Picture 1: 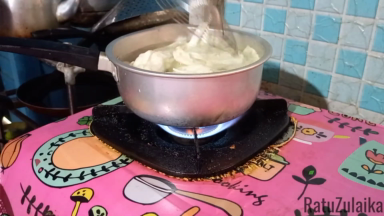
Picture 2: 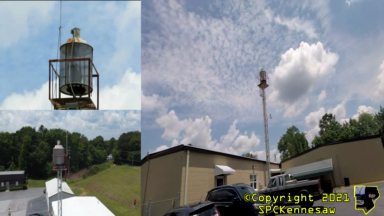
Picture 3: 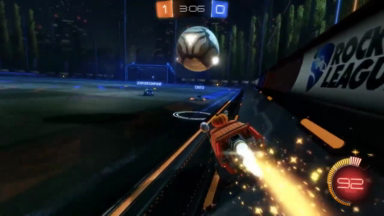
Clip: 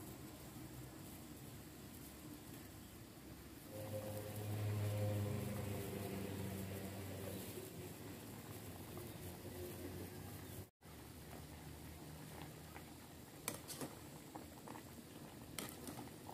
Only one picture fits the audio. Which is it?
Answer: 1